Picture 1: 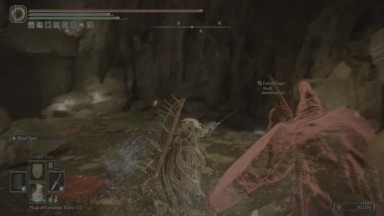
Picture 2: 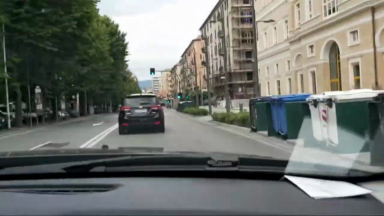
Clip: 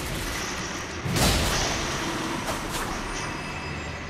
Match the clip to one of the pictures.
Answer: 1